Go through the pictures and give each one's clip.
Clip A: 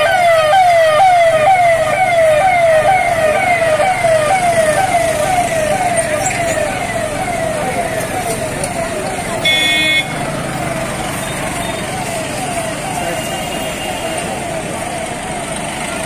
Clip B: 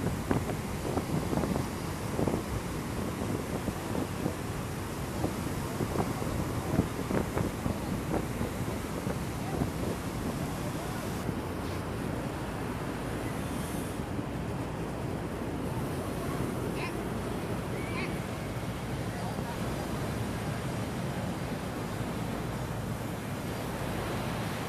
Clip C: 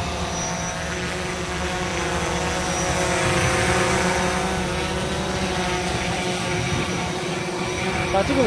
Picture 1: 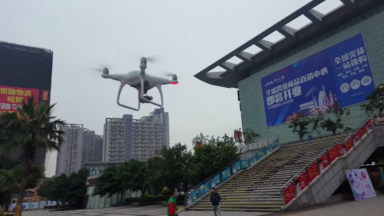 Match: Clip C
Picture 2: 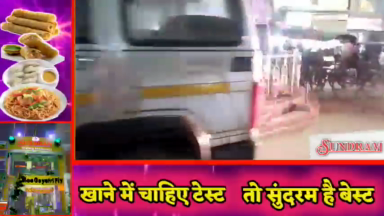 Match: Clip A